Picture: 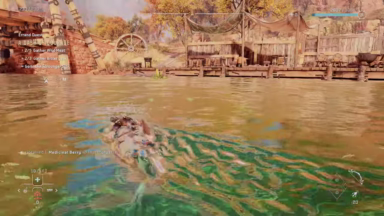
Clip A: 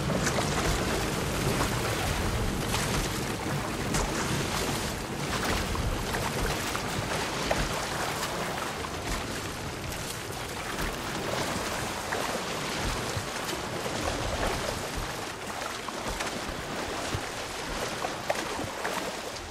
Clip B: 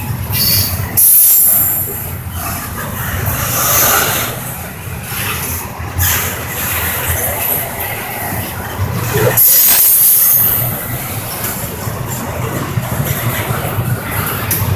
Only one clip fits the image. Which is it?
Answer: A